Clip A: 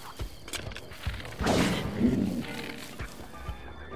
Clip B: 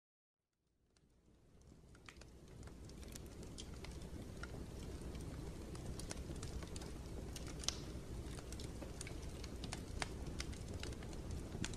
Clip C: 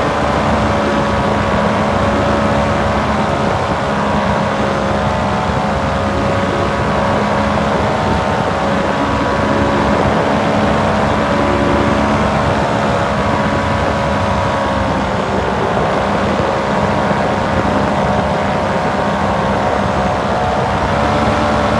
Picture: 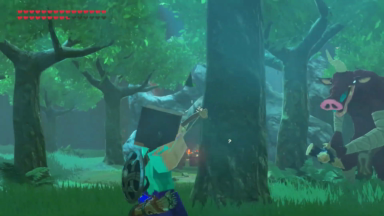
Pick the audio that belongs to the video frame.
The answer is A